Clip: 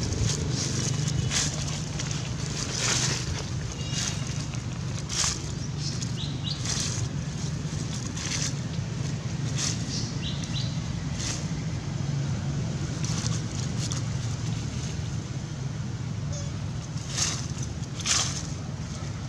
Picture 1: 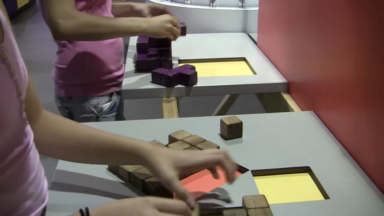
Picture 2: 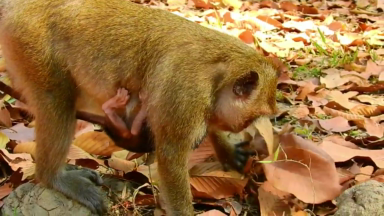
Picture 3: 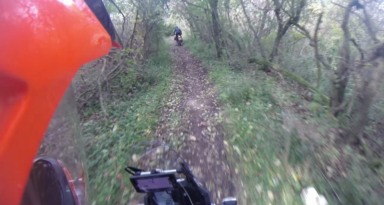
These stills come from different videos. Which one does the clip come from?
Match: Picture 2